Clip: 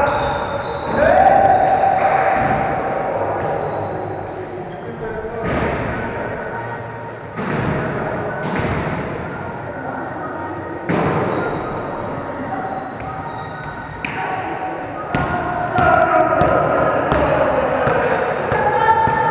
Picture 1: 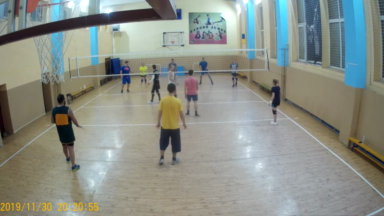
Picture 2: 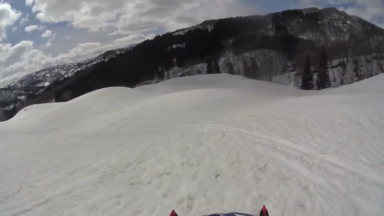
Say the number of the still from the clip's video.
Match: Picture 1